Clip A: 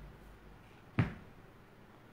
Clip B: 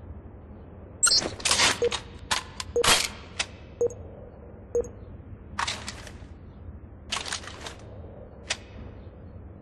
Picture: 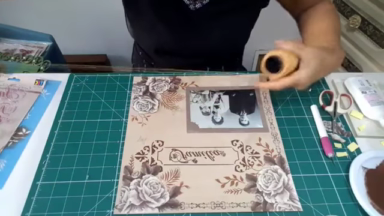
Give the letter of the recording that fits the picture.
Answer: A